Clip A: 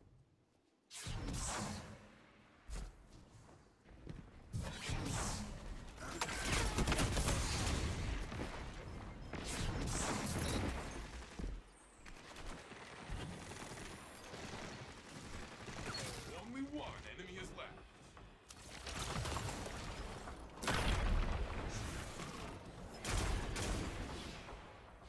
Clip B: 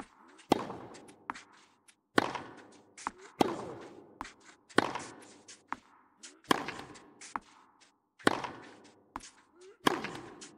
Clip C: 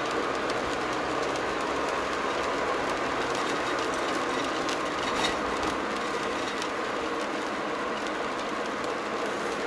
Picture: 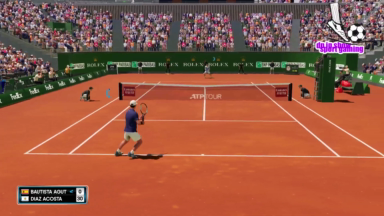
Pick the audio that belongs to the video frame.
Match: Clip B